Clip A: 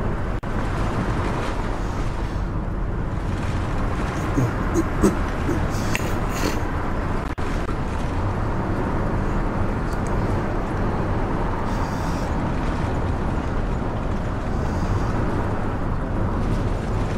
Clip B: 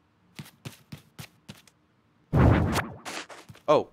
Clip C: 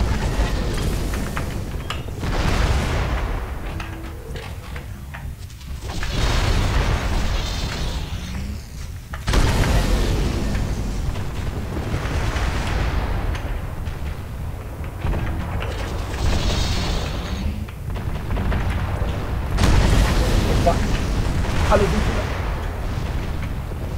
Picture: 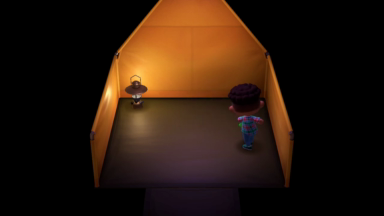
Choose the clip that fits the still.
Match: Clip B